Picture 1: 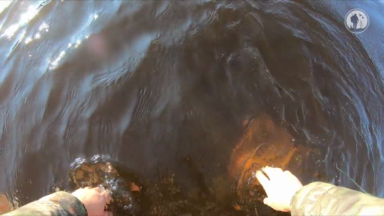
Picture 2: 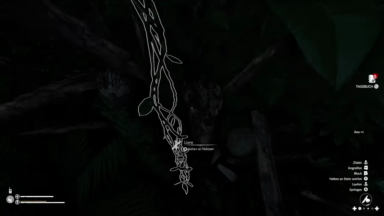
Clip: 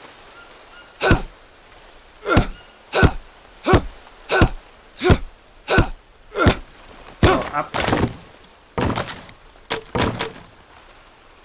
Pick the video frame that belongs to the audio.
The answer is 2